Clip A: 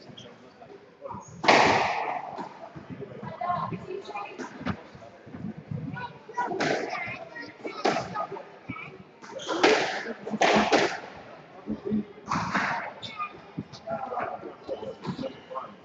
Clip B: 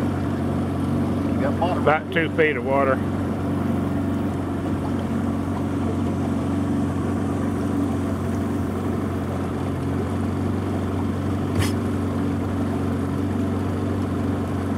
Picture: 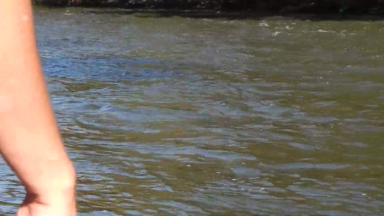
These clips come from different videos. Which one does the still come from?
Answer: B